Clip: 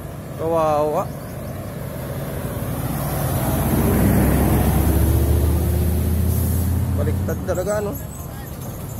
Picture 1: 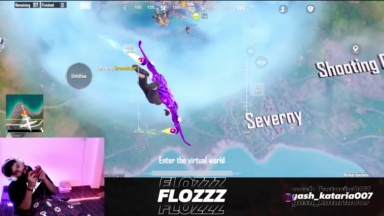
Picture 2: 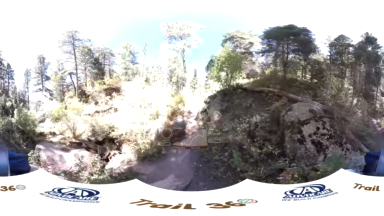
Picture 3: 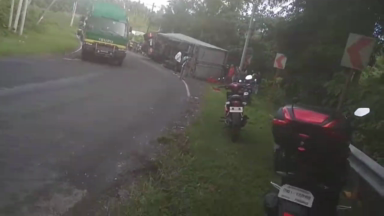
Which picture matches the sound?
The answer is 3